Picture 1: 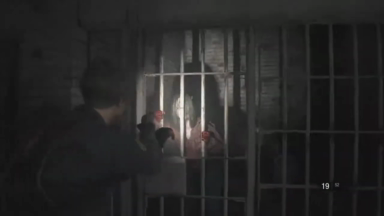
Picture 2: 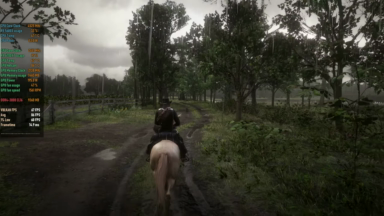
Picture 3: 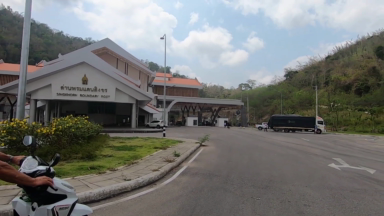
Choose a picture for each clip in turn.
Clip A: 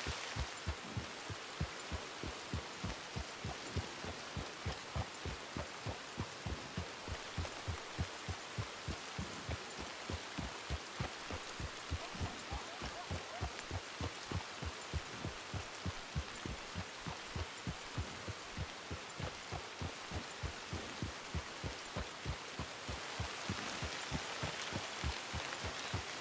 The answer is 2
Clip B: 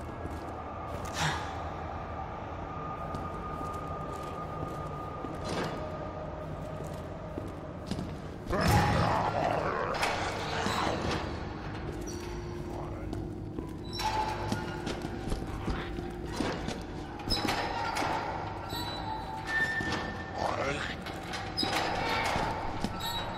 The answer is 1